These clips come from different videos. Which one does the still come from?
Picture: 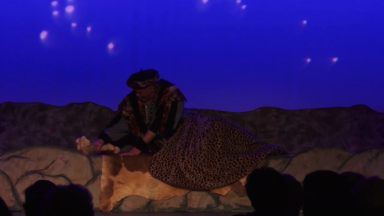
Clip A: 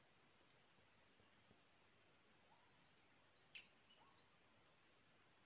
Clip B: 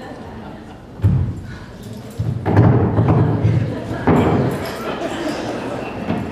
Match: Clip B